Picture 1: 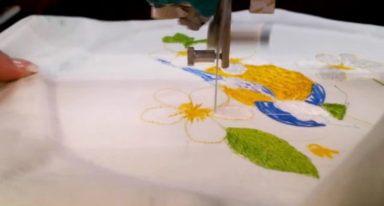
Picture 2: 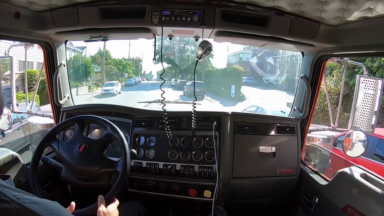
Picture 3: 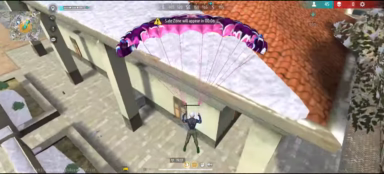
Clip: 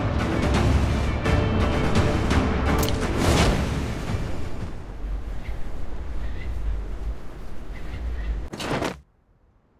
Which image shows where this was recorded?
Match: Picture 3